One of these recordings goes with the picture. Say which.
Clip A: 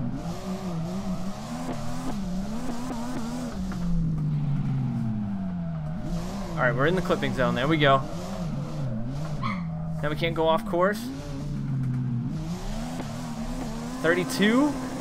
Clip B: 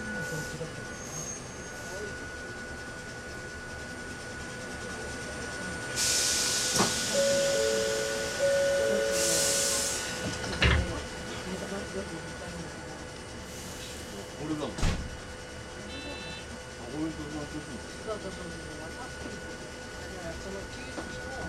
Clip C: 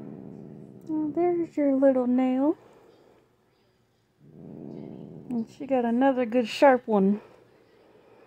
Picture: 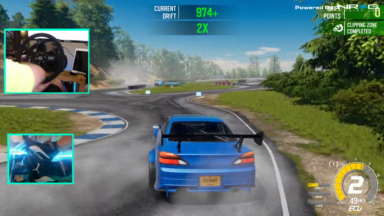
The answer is A